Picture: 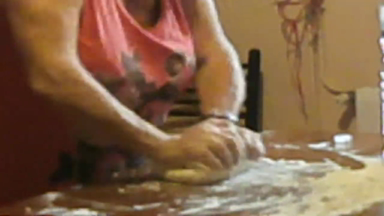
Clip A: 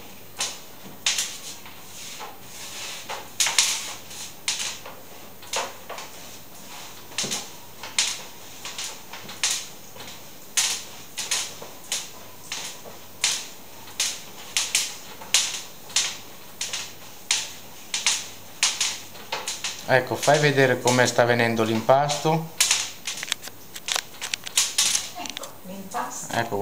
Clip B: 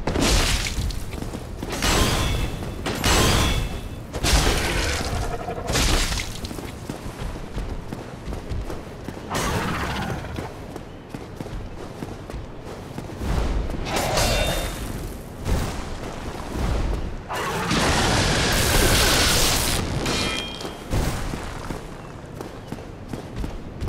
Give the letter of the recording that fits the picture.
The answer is A